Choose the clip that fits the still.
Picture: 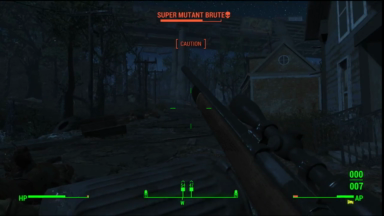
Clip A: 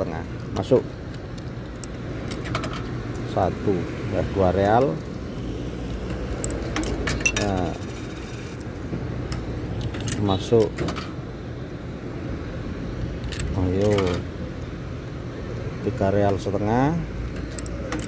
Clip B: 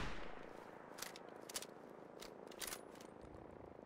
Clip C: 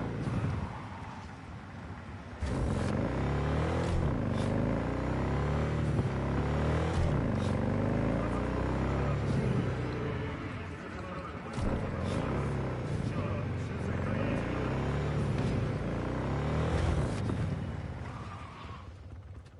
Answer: B